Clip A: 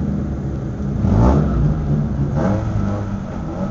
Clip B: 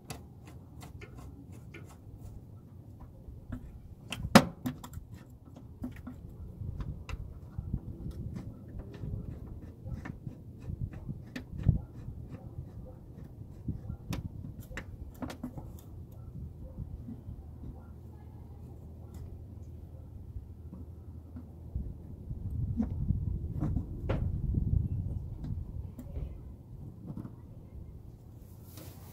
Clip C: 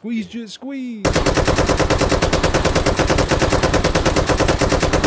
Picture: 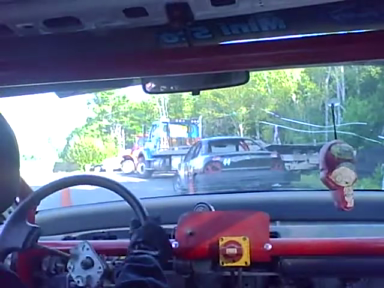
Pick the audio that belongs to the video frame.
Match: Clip A